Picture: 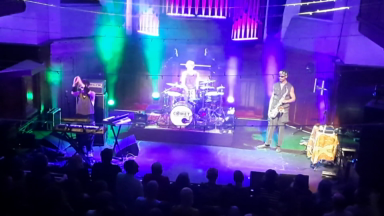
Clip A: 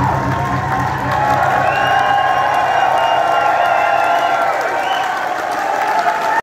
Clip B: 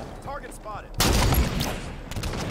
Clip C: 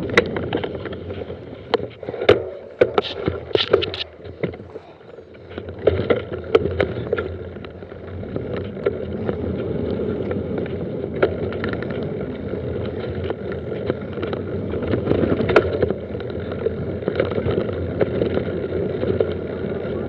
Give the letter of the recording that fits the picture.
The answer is A